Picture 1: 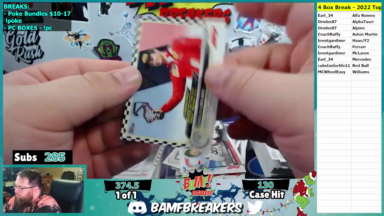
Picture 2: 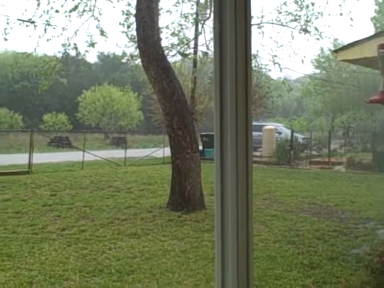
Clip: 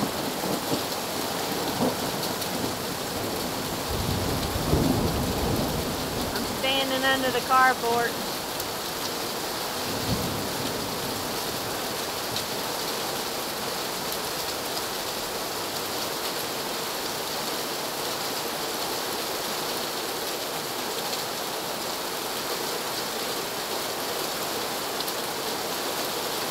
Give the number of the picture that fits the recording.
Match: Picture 2